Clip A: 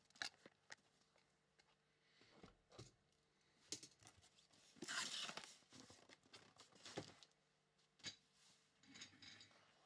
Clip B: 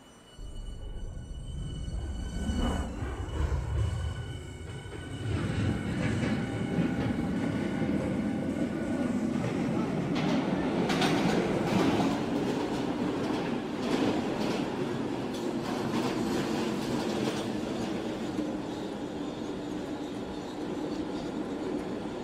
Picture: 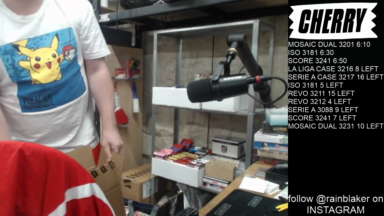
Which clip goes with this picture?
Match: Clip A